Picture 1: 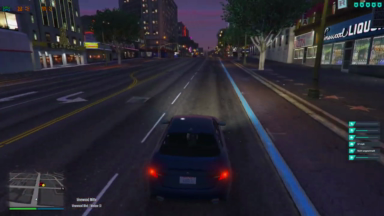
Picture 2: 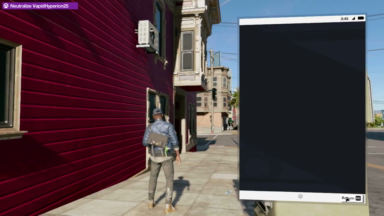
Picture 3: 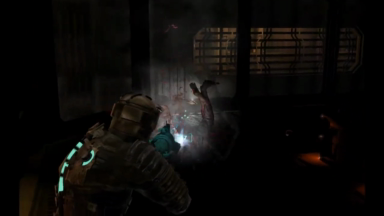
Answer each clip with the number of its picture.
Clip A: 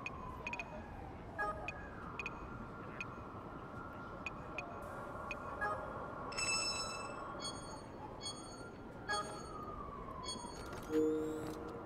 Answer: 2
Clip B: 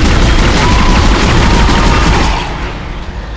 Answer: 3